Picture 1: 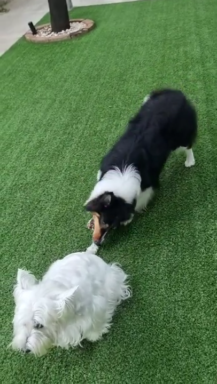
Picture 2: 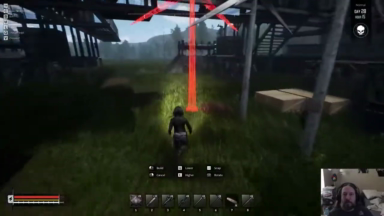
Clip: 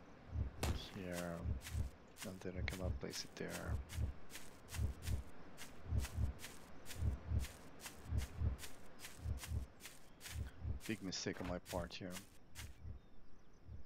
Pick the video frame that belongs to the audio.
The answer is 2